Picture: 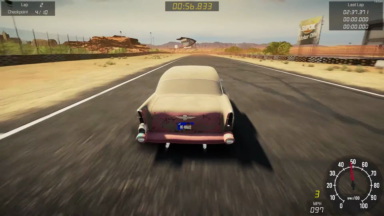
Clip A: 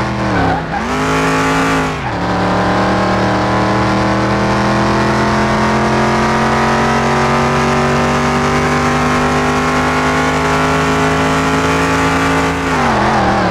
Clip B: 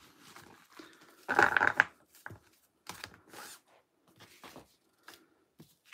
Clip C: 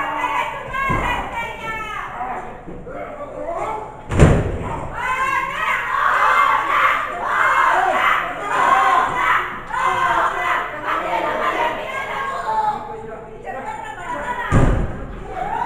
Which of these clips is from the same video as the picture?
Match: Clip A